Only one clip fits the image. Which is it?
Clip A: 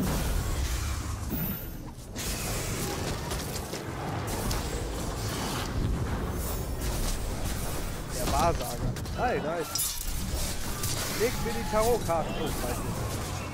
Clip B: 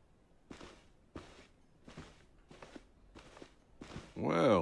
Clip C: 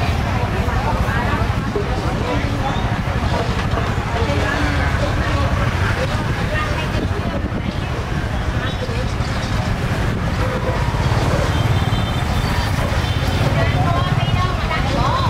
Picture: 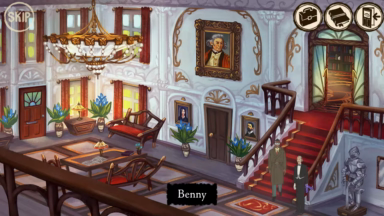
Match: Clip B